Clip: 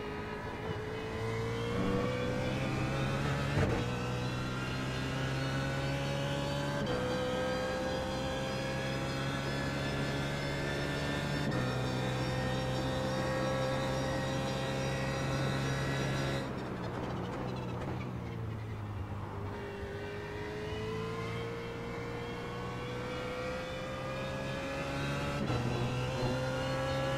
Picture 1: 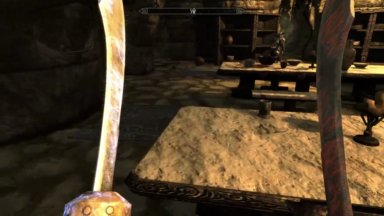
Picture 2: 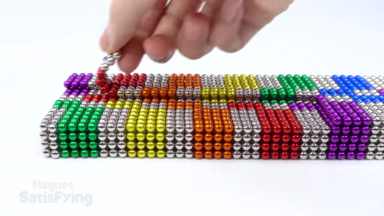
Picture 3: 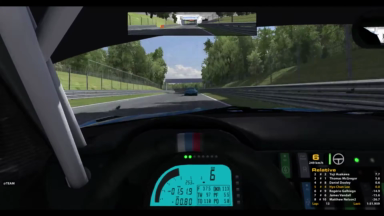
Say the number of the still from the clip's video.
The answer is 3